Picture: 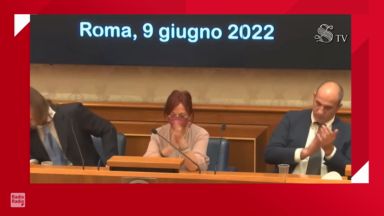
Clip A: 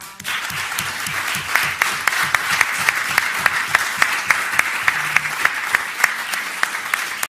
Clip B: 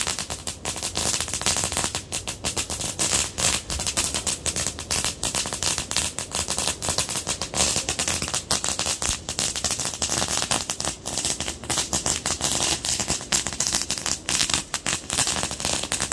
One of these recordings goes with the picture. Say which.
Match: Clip A